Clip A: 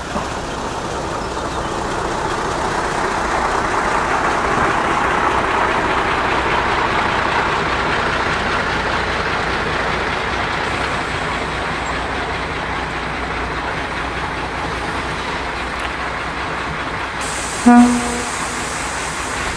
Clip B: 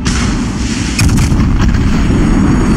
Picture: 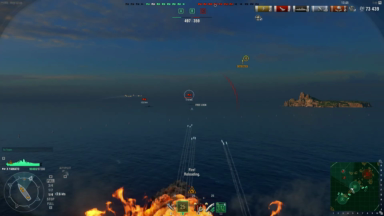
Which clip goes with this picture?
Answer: B